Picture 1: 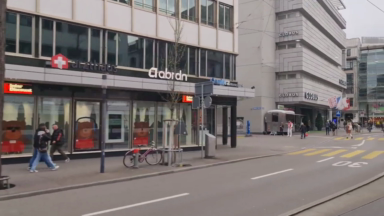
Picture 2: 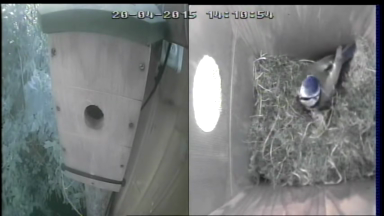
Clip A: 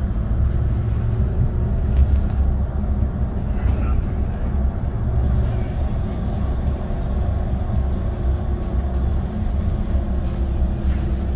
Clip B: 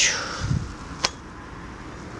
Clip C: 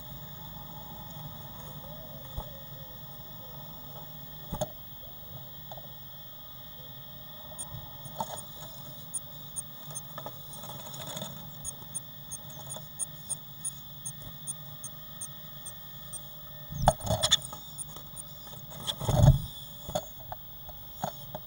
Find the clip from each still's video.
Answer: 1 A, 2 C